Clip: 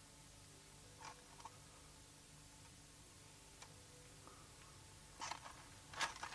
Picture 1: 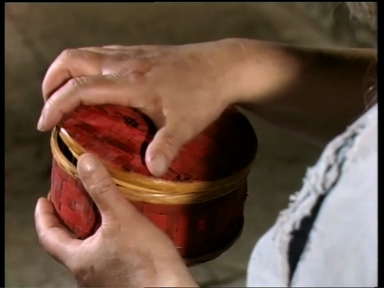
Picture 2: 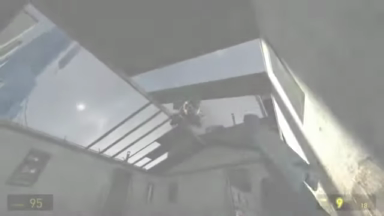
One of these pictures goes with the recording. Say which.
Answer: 1